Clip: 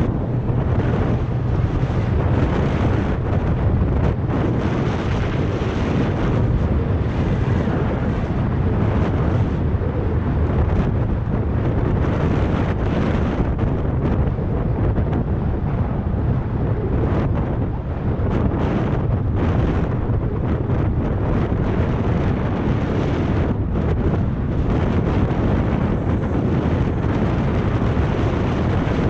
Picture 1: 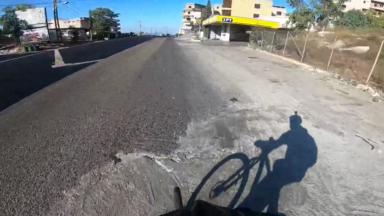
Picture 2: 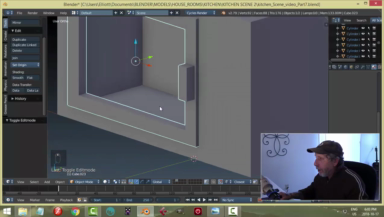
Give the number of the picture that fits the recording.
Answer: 1